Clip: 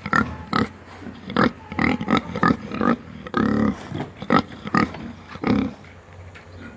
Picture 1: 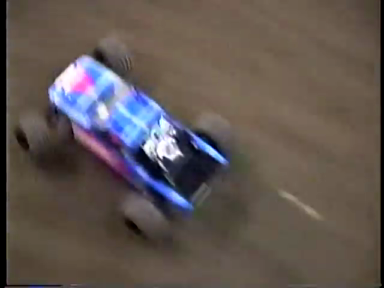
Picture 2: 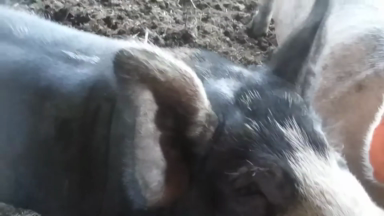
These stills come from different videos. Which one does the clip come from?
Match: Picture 2